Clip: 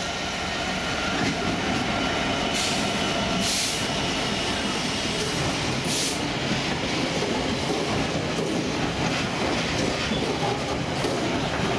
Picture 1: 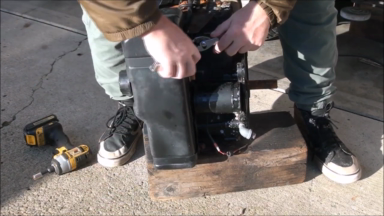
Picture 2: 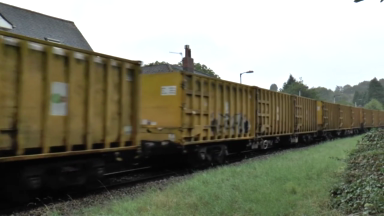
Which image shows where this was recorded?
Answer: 2